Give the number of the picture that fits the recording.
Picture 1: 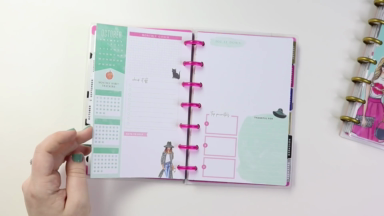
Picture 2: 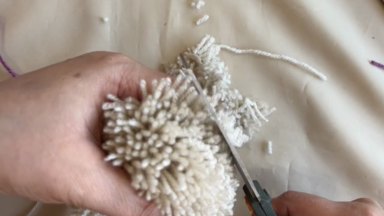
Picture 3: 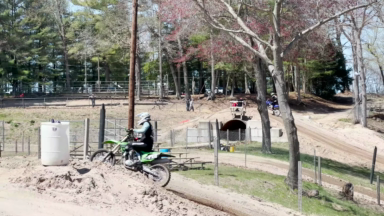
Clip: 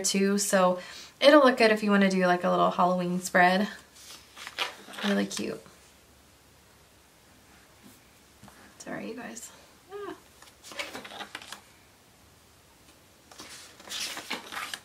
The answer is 1